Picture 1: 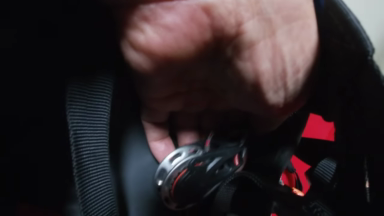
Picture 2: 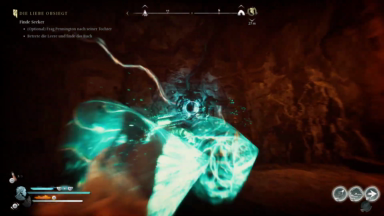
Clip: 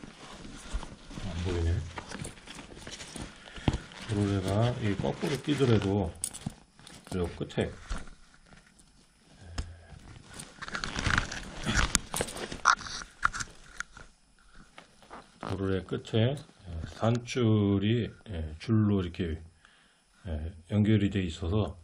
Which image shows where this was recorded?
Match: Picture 1